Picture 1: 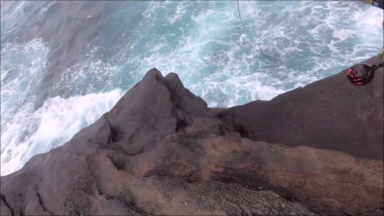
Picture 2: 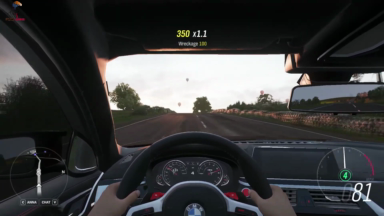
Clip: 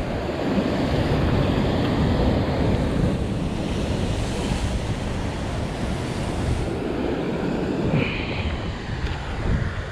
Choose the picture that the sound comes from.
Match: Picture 1